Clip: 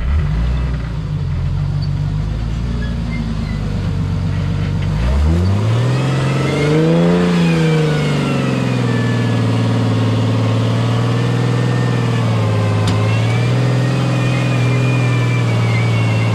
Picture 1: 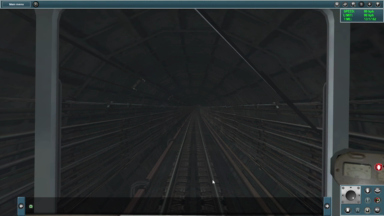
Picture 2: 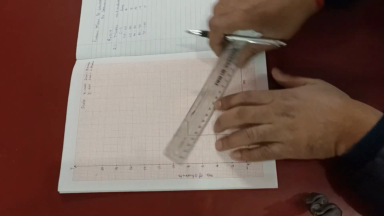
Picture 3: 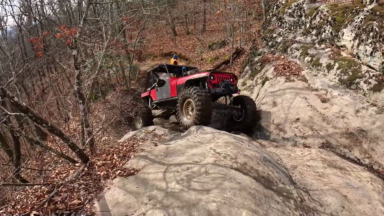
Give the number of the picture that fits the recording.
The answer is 3